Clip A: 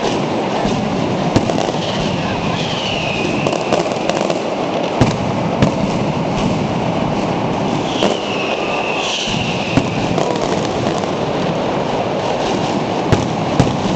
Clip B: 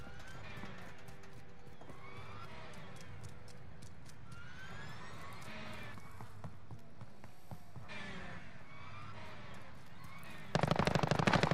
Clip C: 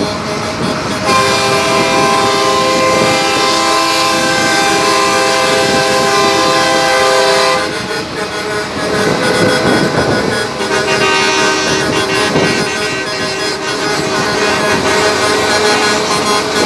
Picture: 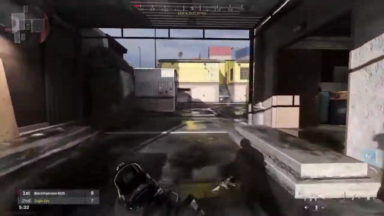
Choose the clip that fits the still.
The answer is B